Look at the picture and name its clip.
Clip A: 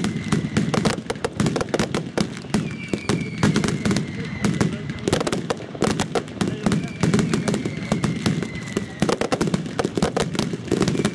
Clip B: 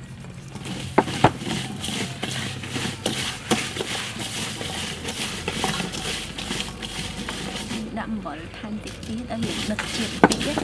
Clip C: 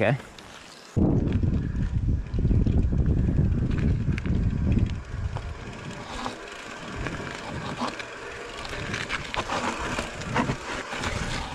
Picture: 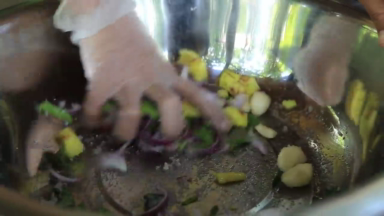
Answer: B